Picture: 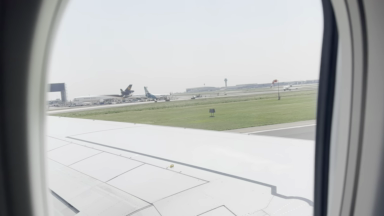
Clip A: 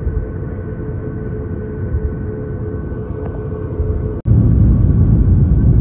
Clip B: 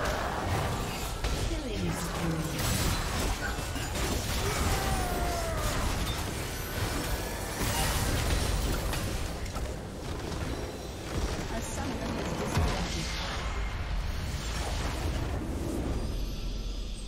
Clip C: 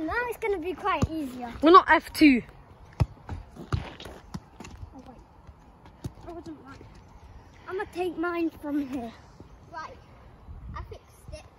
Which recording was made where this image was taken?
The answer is A